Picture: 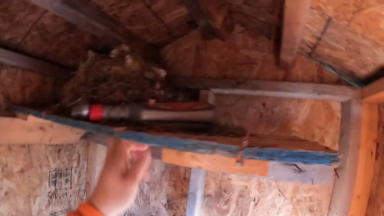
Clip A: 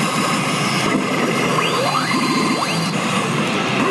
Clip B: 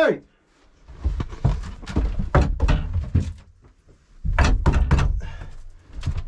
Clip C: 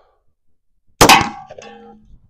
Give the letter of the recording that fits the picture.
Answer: B